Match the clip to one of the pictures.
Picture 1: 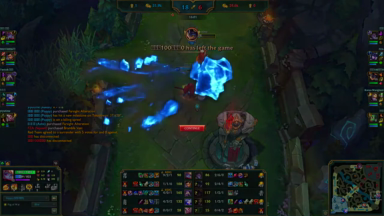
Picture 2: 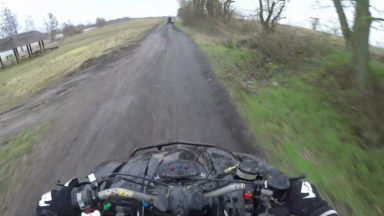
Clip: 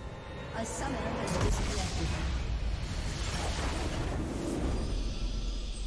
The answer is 1